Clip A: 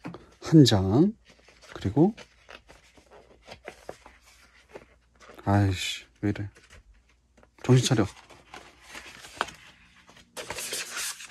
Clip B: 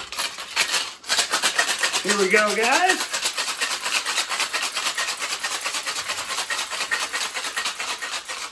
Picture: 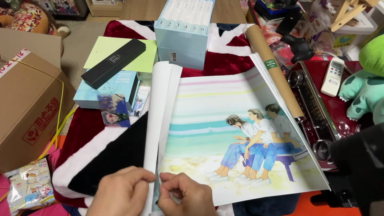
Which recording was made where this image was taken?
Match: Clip A